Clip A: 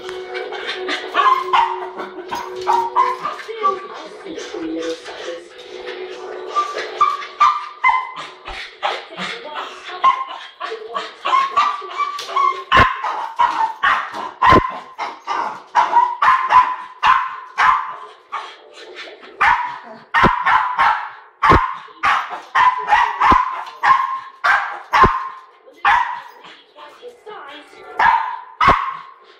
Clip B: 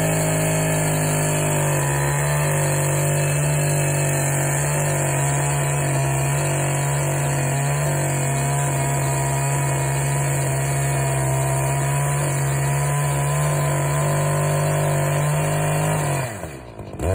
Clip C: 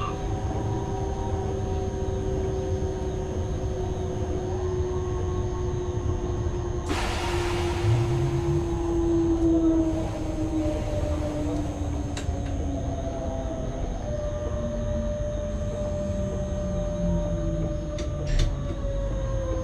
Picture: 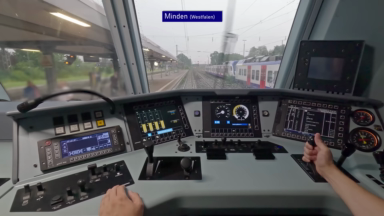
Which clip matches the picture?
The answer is C